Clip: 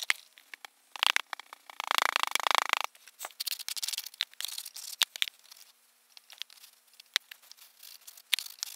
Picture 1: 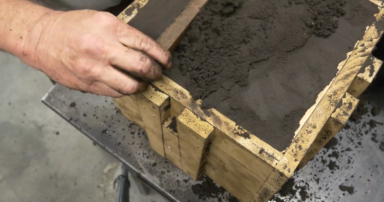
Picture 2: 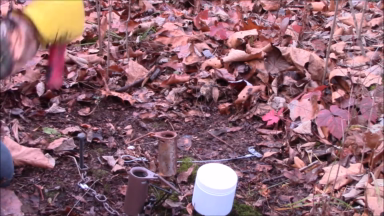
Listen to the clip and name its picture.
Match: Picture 1